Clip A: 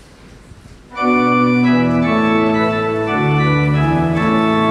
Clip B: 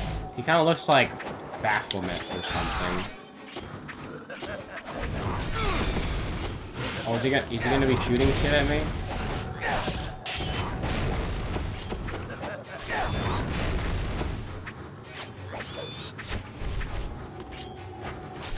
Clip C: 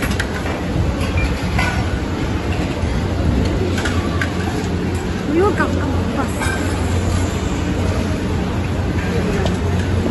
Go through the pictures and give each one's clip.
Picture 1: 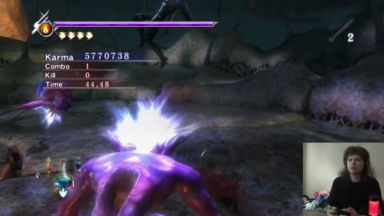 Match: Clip B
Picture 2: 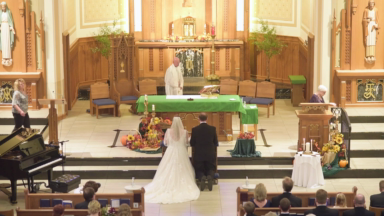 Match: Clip A